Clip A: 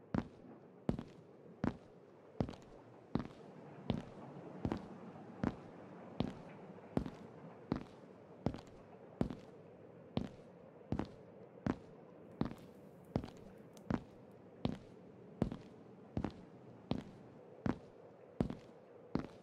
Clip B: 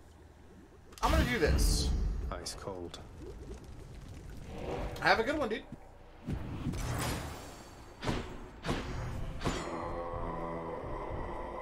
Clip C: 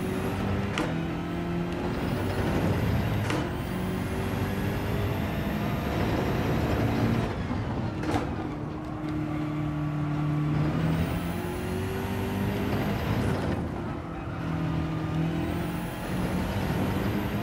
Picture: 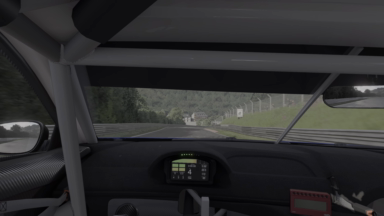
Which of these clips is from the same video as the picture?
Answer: C